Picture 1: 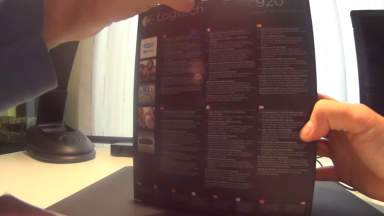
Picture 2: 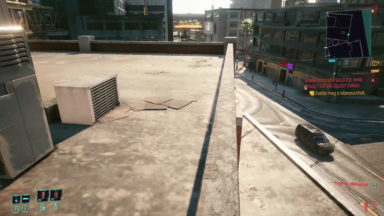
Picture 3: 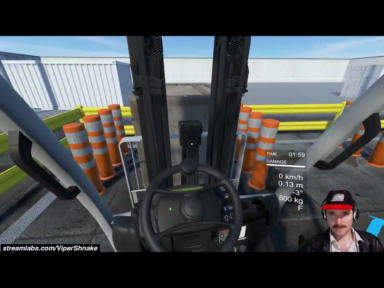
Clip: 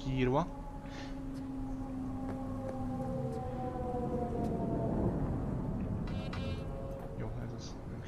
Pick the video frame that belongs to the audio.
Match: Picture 2